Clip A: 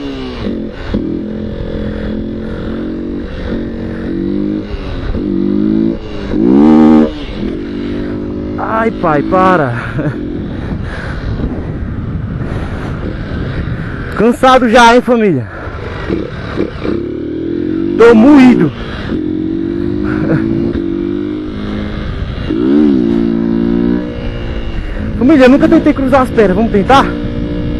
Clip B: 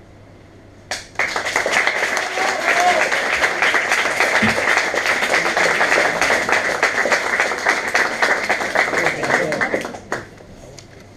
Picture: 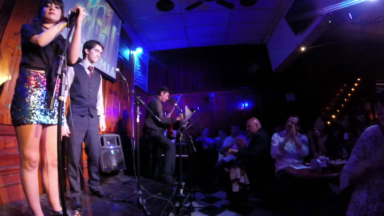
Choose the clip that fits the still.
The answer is B